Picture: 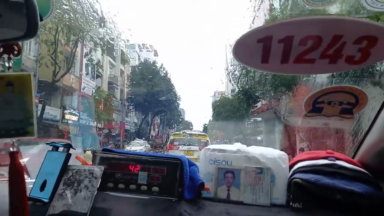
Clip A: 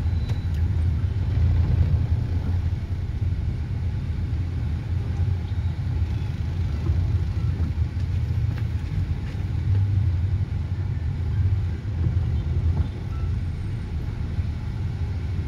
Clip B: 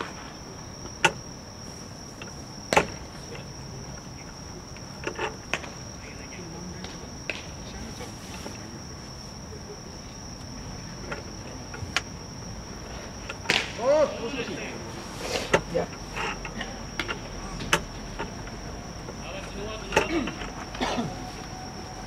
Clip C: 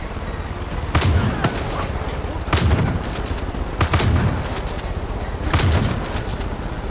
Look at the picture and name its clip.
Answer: A